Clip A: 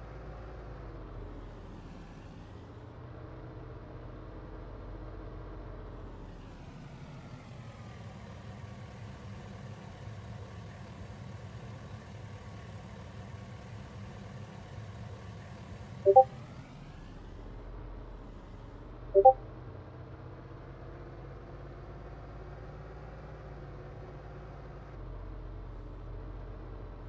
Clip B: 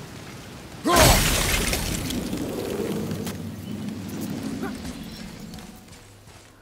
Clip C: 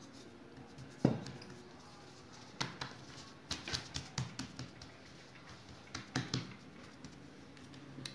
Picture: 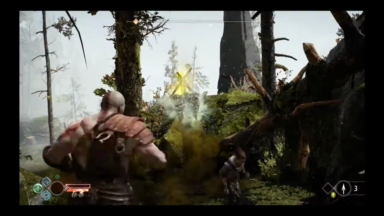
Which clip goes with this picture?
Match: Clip B